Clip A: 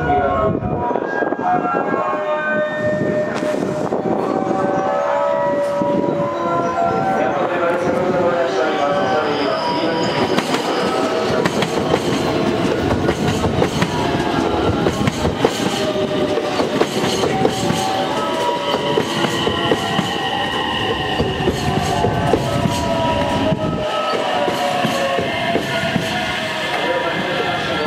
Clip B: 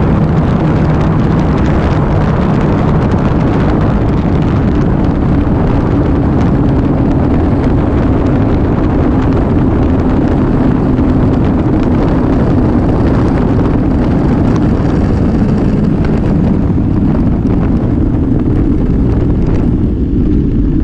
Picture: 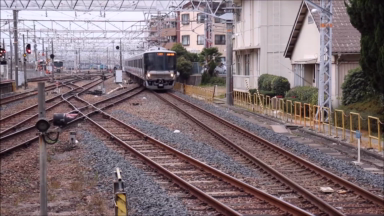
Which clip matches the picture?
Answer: A